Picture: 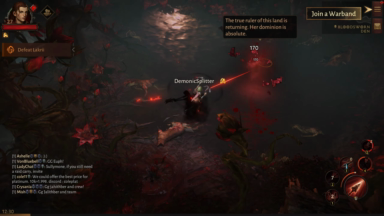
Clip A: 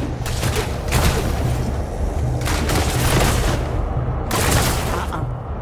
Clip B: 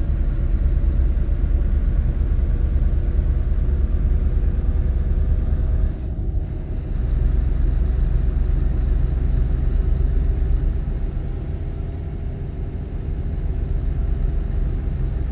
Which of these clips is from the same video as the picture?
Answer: A